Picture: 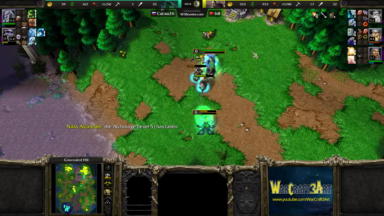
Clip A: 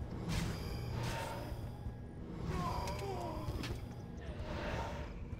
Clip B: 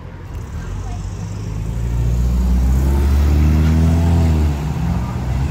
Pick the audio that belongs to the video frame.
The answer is A